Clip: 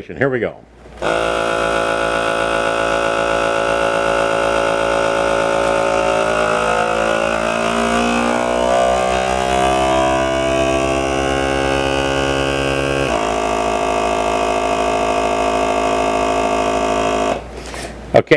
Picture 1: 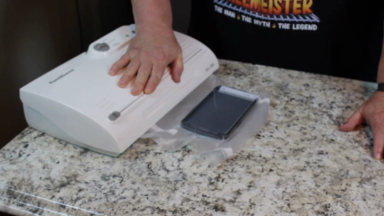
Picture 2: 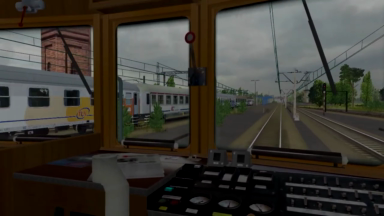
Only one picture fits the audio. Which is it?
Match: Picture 1